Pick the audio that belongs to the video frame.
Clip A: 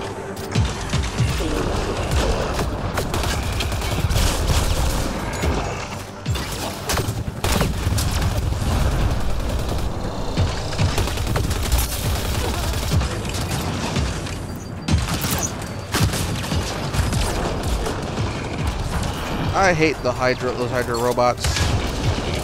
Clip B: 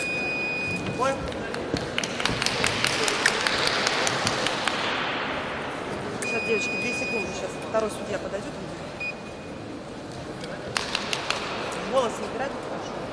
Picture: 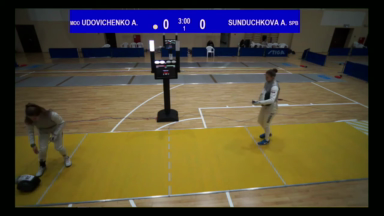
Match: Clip B